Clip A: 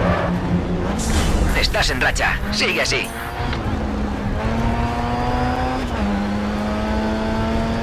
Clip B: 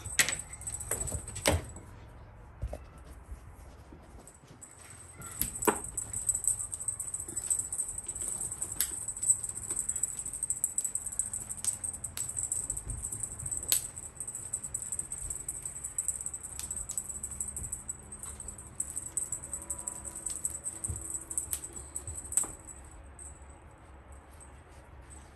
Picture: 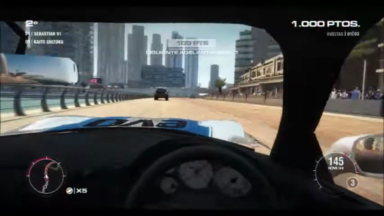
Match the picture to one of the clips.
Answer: A